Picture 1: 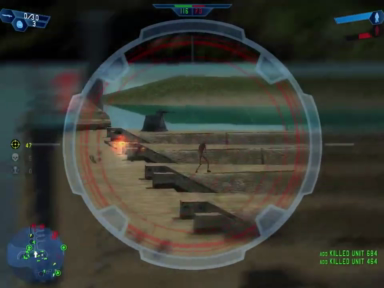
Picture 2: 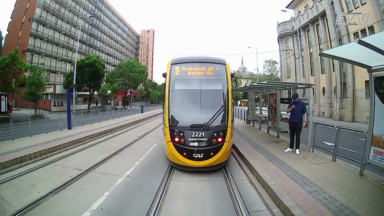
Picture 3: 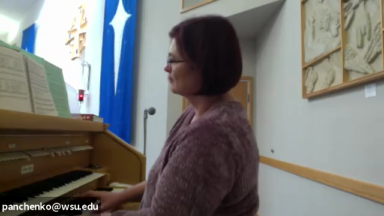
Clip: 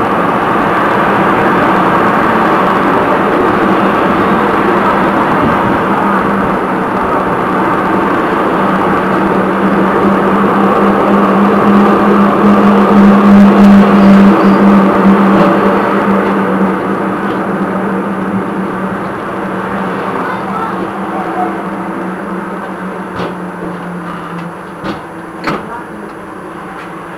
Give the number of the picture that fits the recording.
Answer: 2